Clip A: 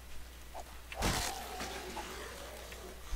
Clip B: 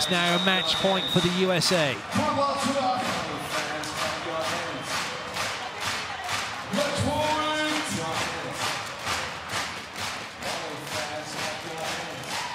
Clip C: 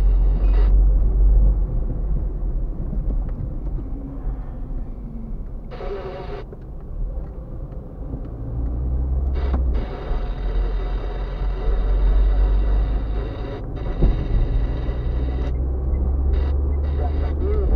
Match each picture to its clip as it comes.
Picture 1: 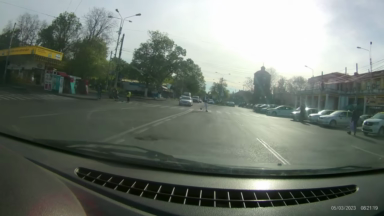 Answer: C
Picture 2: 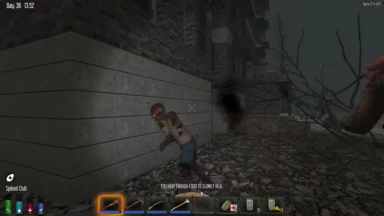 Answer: A